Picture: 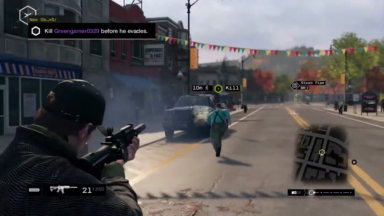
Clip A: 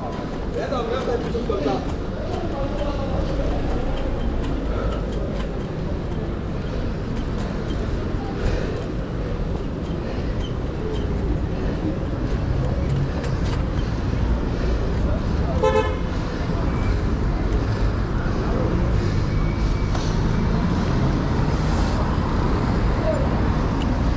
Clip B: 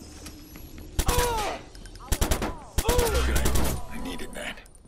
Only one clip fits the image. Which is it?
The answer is B